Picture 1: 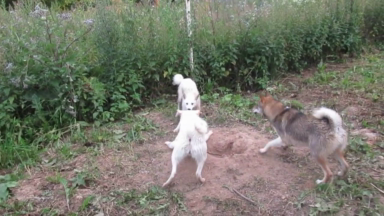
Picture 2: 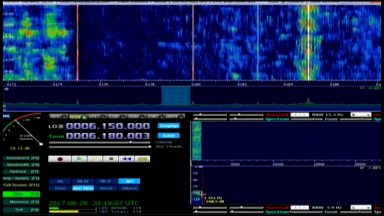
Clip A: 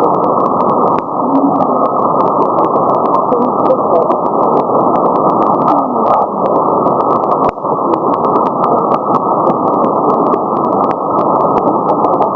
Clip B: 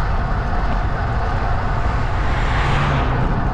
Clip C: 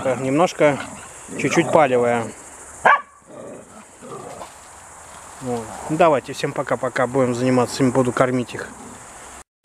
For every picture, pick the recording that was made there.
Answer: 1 C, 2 A